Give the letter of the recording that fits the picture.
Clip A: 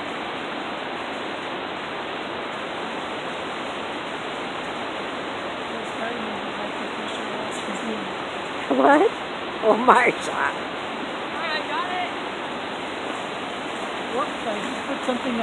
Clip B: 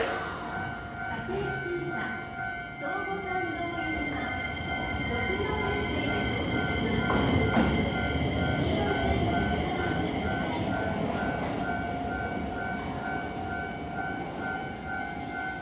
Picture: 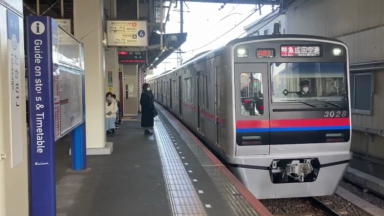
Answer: B